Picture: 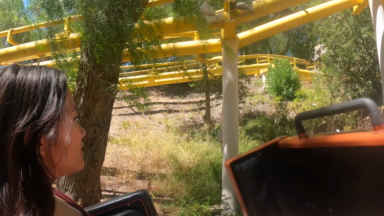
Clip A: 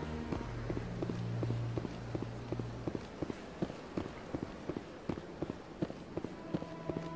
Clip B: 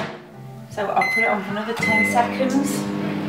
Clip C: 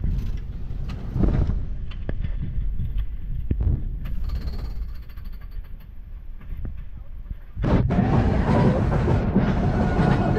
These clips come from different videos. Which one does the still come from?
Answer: C